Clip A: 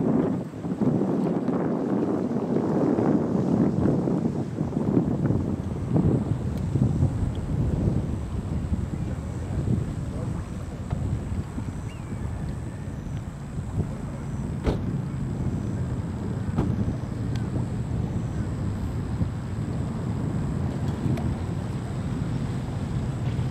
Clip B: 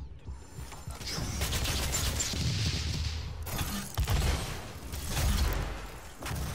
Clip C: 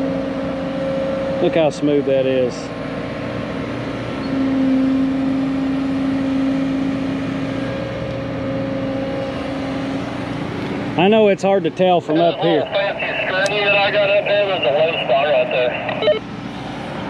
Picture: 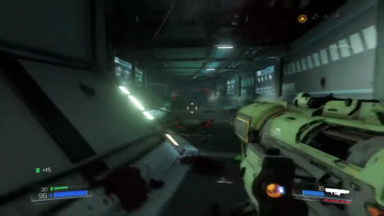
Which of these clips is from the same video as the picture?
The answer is B